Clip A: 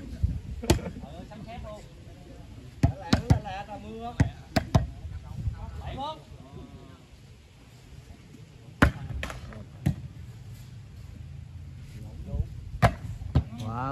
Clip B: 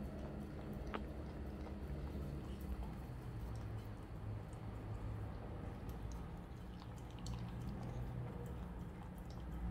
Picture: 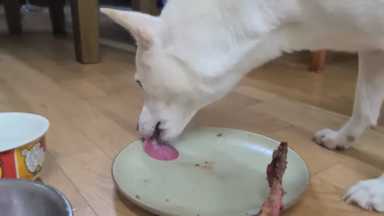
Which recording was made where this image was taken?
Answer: B